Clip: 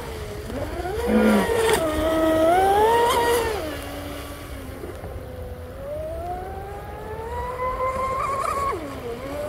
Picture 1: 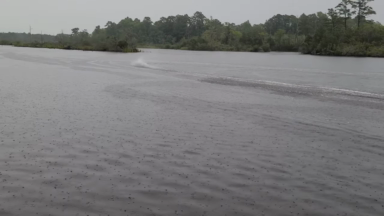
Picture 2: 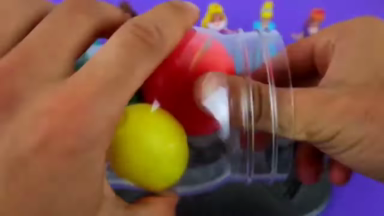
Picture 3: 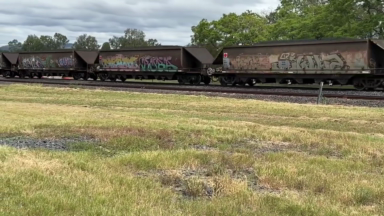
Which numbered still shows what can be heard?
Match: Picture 1